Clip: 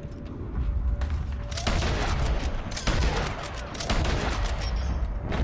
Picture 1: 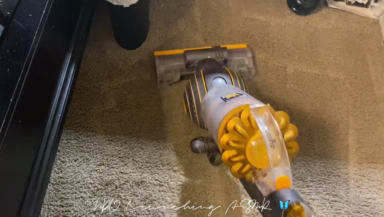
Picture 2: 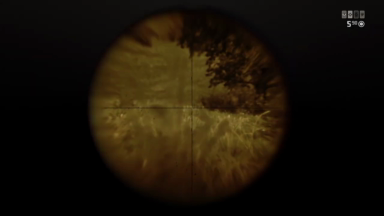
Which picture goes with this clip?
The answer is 2